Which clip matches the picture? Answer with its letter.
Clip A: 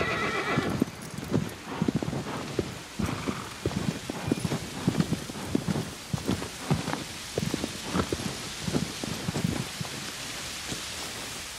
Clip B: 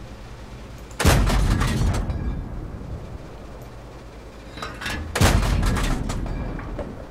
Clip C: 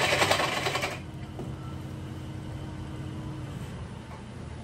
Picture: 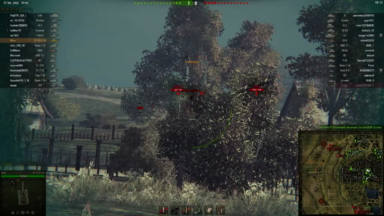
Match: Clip B